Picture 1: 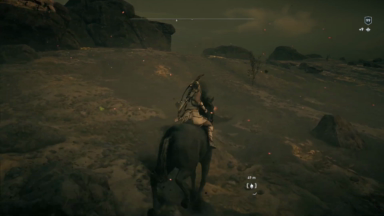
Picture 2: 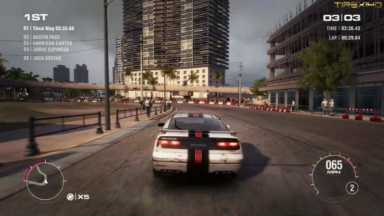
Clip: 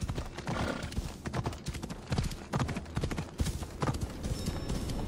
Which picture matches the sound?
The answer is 1